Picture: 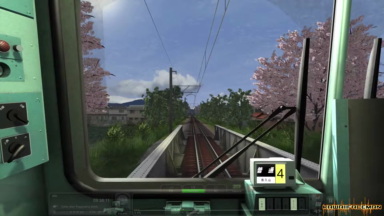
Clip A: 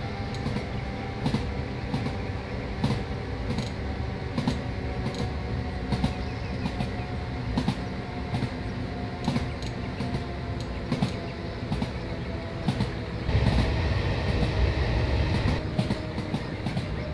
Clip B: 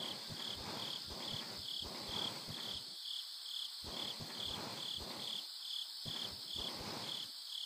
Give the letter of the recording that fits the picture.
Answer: A